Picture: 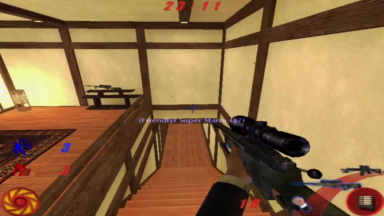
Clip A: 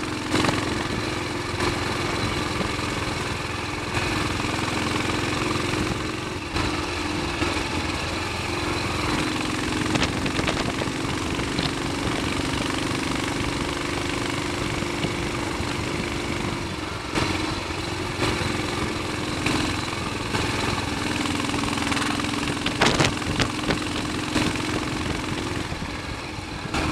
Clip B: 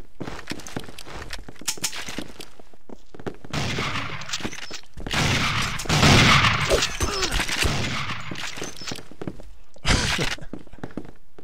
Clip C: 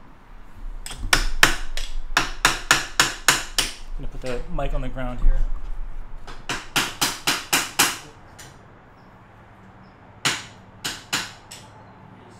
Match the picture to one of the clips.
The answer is B